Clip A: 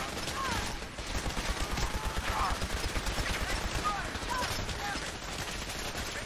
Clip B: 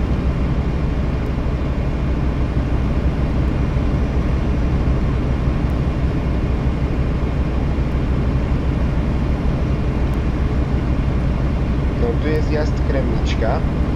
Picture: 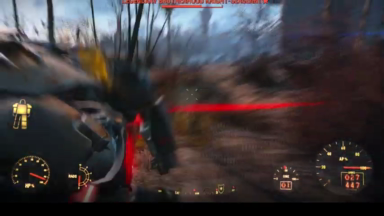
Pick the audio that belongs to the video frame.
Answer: A